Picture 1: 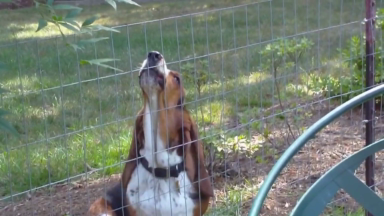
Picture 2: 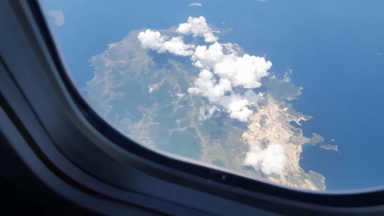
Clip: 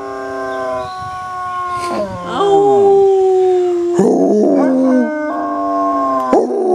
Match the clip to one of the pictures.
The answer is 1